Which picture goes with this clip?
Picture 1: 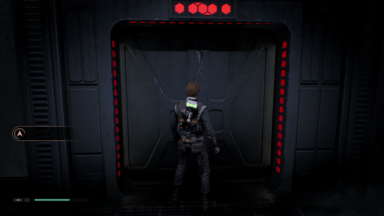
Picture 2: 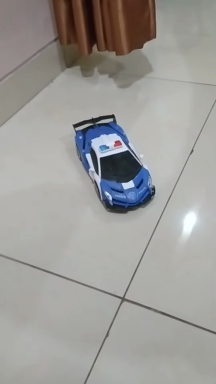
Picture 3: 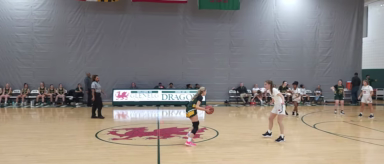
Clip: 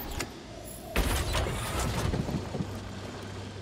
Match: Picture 1